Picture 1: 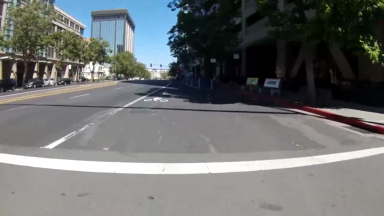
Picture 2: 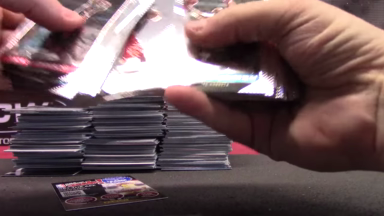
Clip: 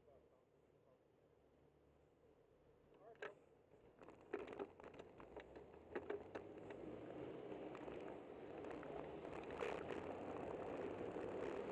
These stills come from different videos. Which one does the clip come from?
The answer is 1